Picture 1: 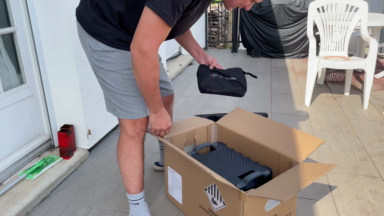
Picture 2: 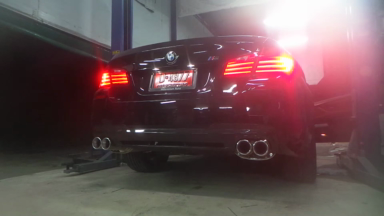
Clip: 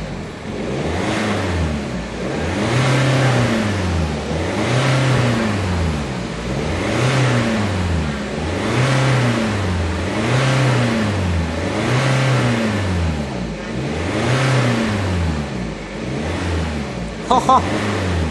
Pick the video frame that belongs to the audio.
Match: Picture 2